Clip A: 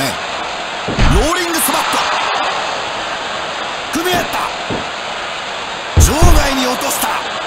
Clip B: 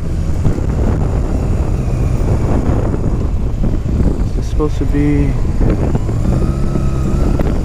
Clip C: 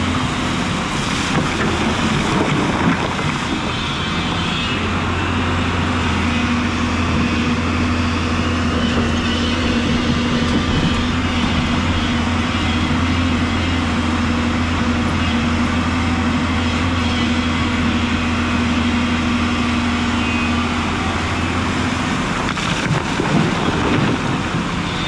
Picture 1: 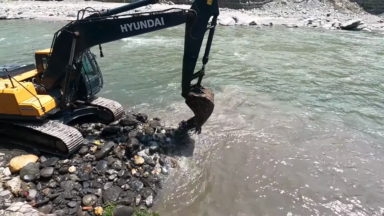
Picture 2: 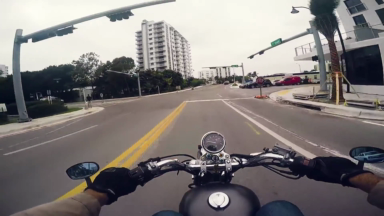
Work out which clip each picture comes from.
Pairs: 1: C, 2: B